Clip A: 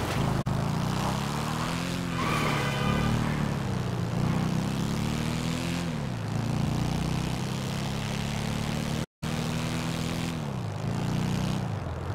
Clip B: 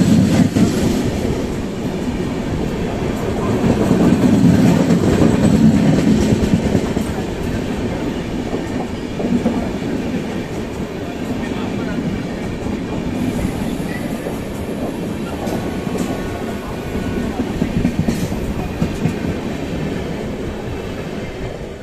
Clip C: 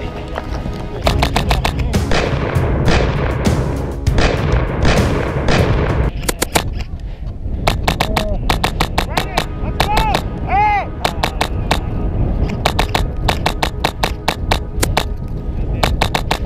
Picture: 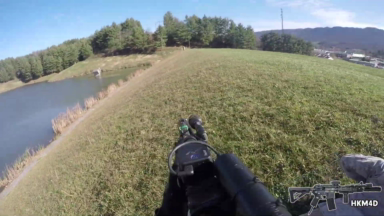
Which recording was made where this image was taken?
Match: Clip C